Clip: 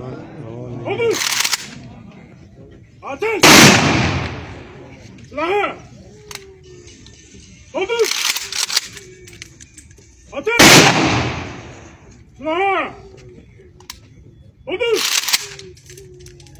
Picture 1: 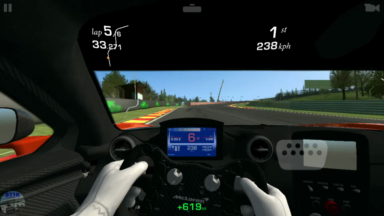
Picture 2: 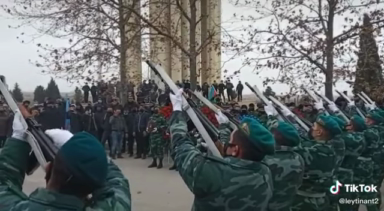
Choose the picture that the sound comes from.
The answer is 2